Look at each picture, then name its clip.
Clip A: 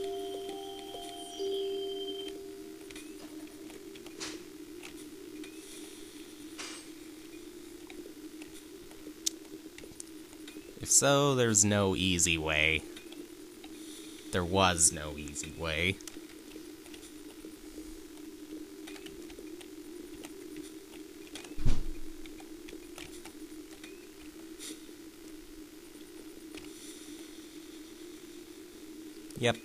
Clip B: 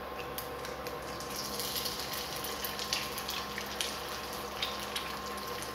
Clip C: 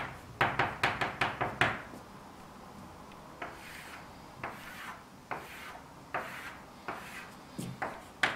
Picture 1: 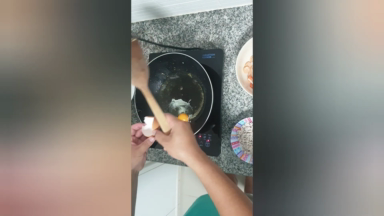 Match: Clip B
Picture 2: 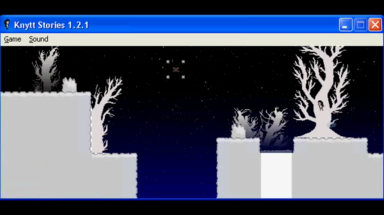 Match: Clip A